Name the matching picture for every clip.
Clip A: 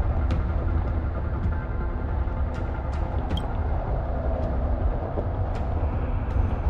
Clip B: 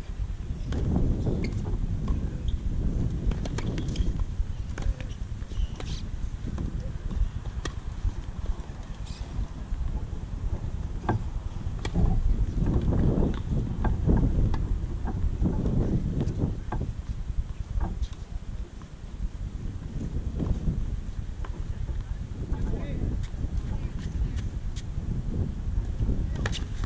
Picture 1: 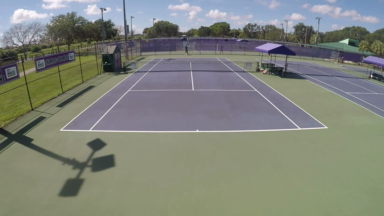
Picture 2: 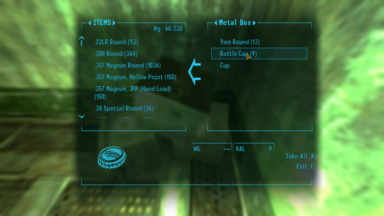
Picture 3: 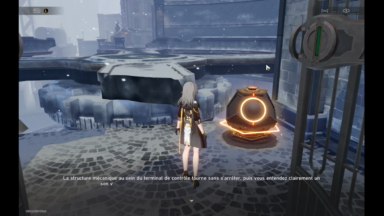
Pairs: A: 3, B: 1